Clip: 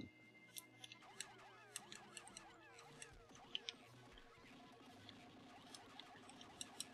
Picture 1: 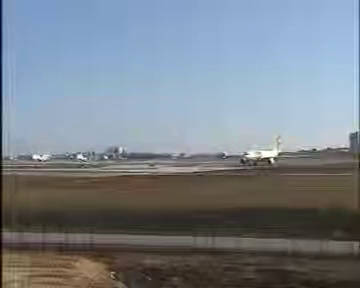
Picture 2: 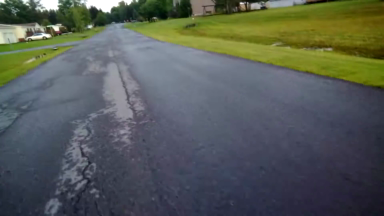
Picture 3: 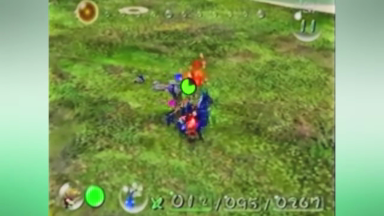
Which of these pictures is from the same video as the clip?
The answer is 3